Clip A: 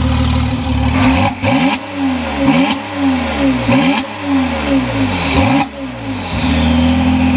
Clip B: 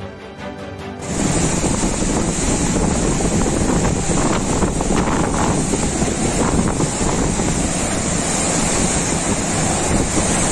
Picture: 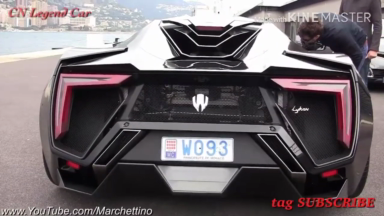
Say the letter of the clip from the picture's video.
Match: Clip A